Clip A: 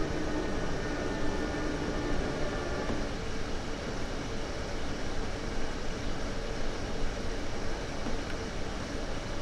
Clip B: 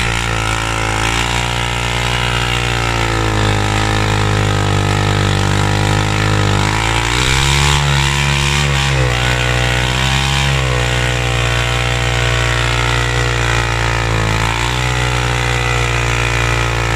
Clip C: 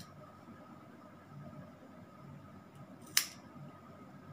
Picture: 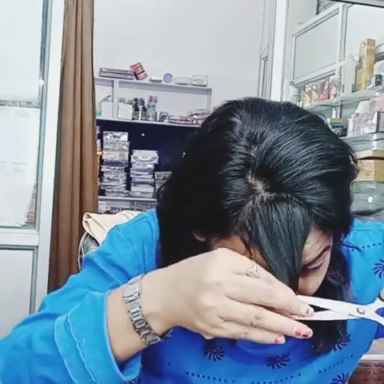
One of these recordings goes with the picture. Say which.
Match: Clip C